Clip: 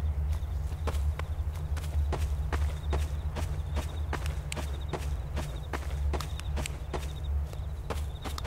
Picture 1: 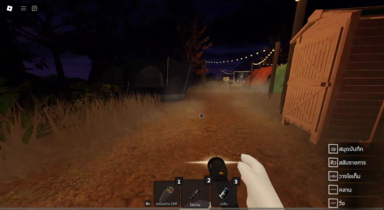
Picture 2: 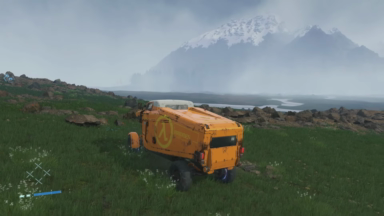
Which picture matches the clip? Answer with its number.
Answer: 1